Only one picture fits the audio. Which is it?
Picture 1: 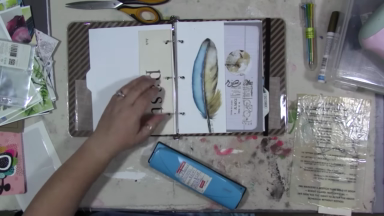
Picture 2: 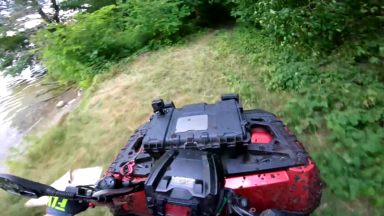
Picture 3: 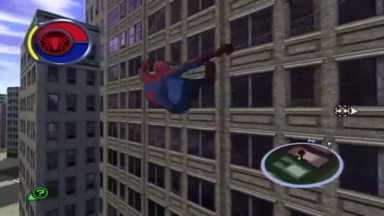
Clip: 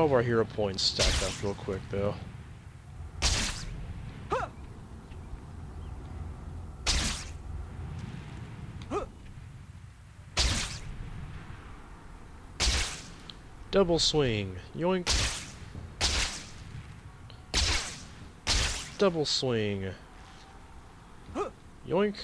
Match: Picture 3